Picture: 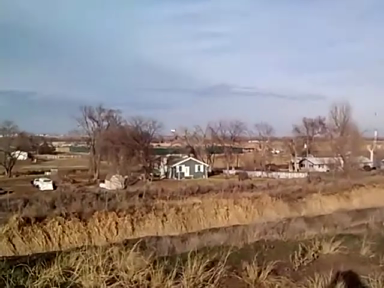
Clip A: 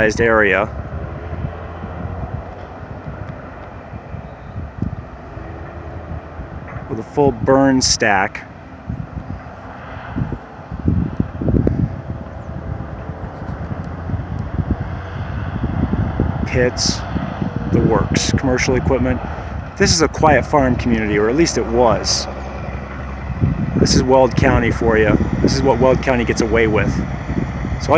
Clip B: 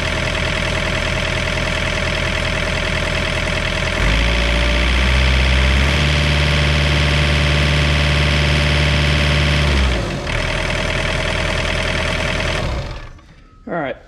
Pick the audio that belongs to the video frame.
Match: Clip A